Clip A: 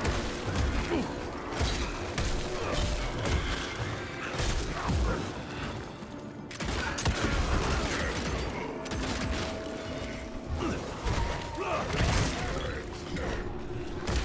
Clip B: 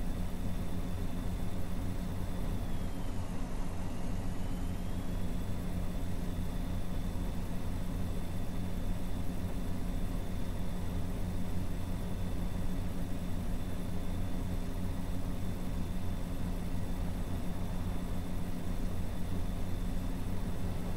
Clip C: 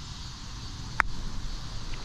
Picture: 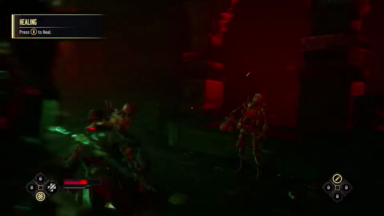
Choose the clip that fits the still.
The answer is A